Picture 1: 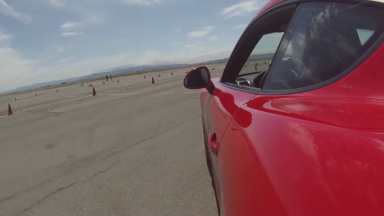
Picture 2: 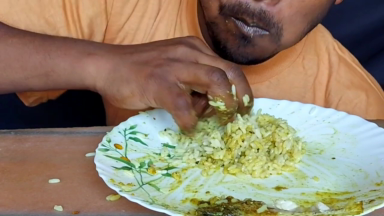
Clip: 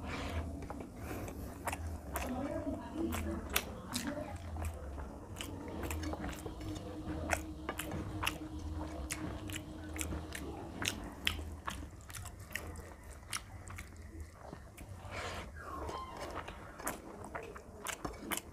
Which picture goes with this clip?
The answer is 2